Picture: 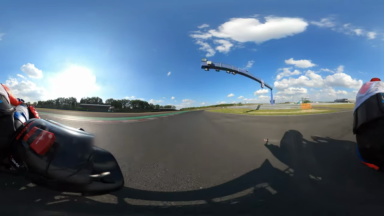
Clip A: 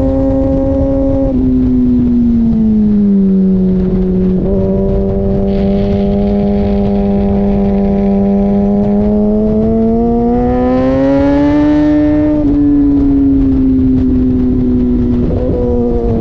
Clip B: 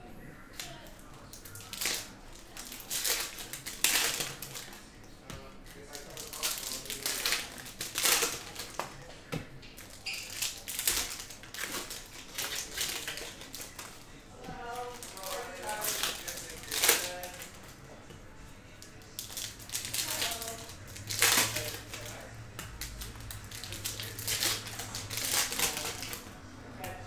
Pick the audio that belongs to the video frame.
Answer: A